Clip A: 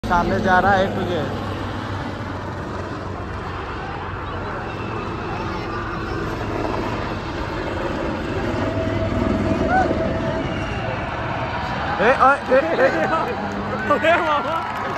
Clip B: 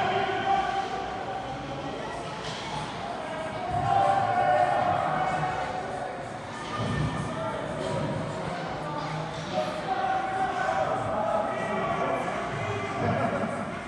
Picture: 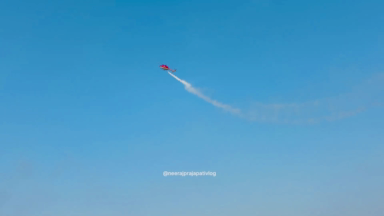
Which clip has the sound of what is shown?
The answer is A